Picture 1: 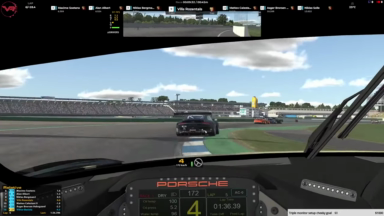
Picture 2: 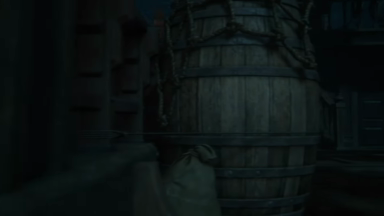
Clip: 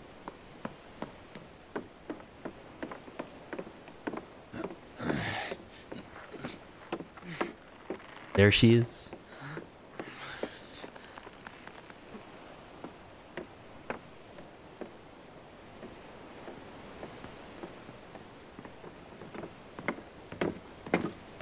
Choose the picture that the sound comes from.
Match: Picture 2